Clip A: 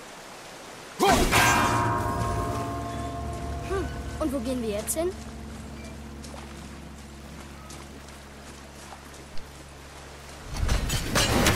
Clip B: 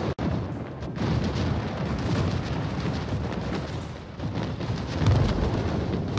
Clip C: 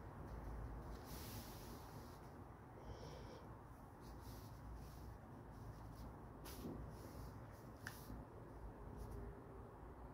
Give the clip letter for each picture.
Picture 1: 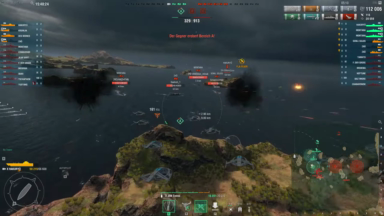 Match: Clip B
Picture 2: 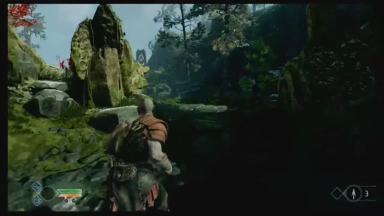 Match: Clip A